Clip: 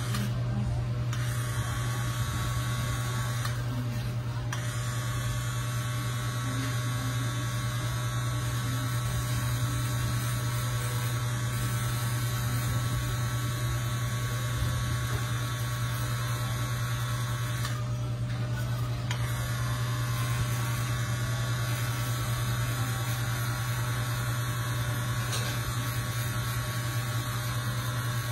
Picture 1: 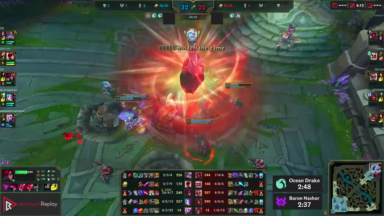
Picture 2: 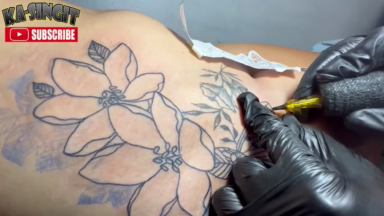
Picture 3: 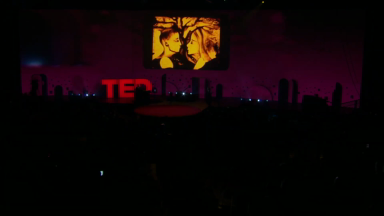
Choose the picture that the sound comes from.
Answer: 2